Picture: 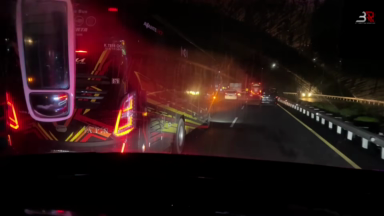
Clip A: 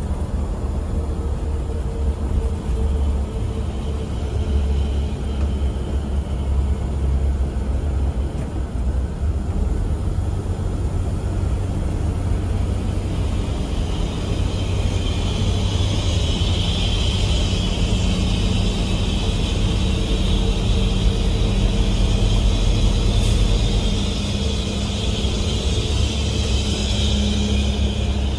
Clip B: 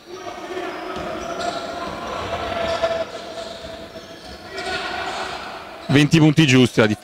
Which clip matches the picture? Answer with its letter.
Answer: A